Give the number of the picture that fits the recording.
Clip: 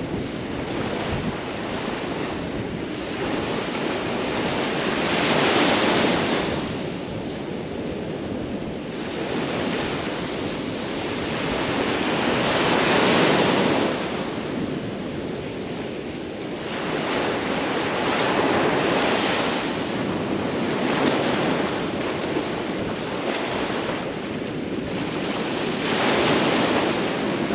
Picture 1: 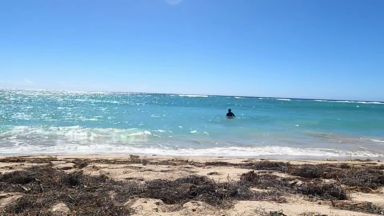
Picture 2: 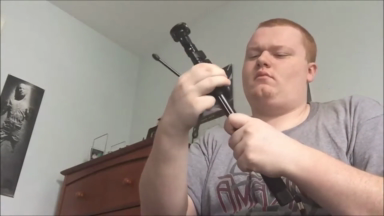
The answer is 1